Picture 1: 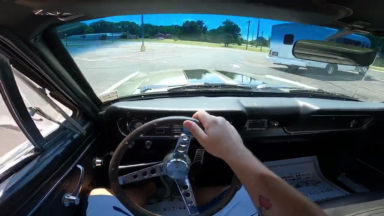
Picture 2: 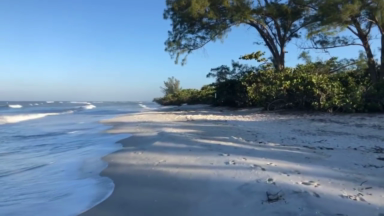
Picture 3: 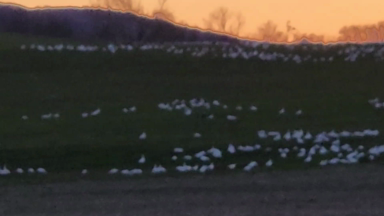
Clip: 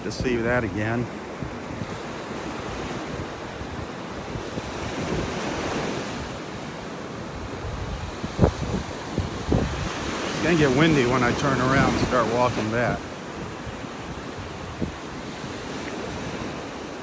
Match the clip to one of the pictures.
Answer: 2